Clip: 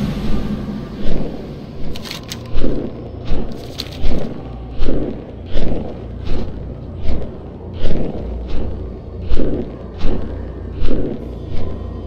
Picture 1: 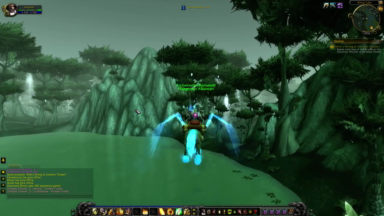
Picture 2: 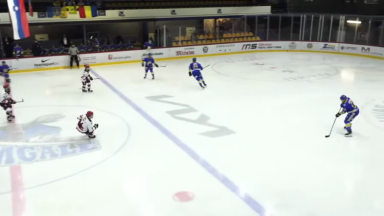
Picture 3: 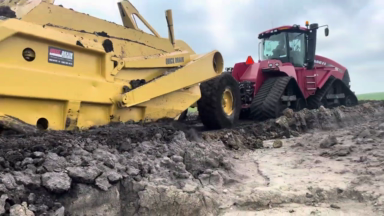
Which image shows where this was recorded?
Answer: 1